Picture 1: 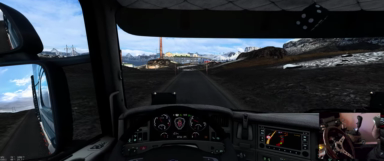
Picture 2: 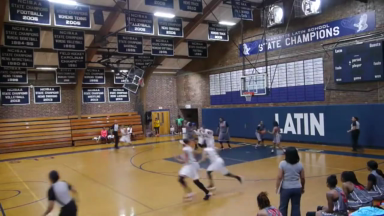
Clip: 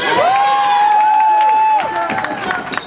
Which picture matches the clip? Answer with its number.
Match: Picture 2